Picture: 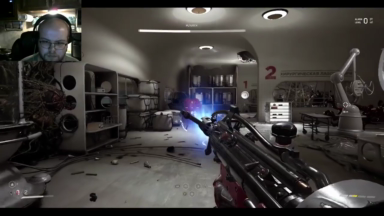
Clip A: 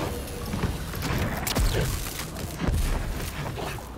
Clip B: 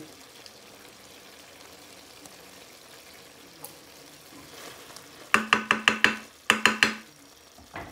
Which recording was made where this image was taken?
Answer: A